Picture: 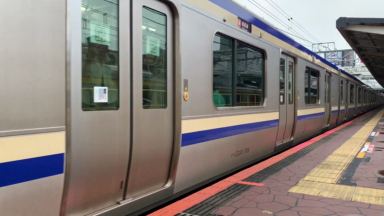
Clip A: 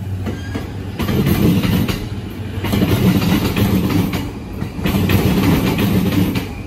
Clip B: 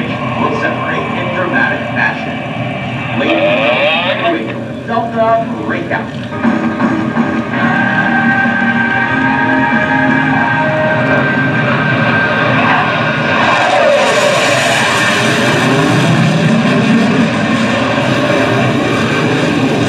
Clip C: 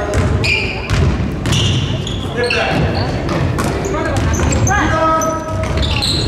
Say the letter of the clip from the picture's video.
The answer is A